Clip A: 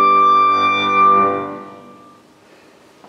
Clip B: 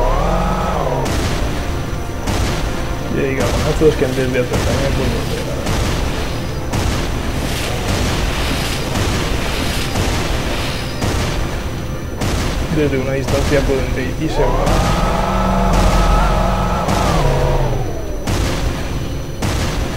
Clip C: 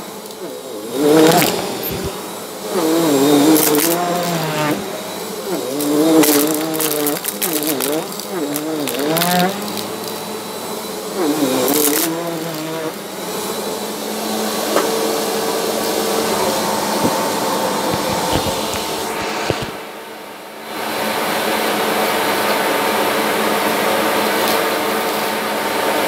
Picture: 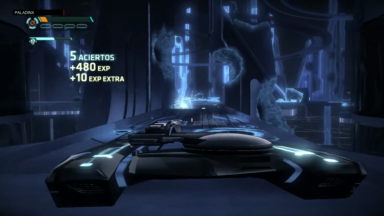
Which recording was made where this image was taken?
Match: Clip B